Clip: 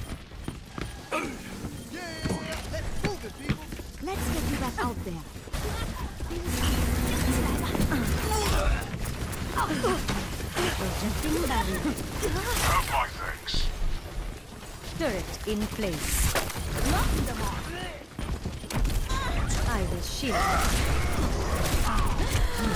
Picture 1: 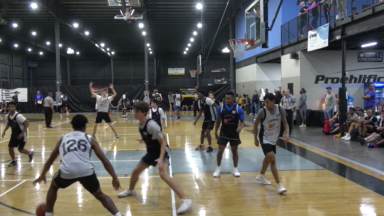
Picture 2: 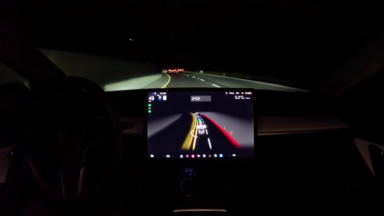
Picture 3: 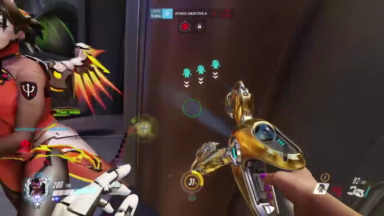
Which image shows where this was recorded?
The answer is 3